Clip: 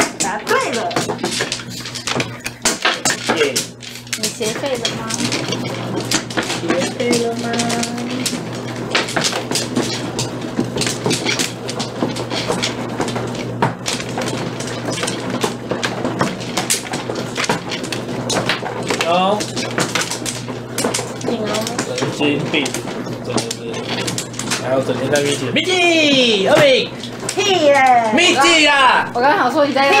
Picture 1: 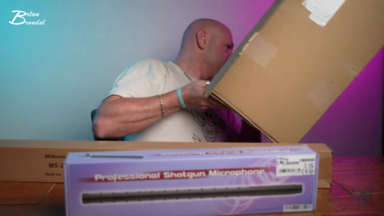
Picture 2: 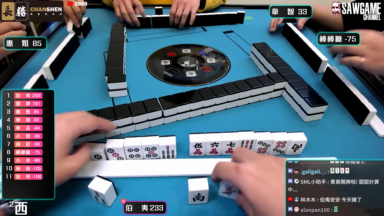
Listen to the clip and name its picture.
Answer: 2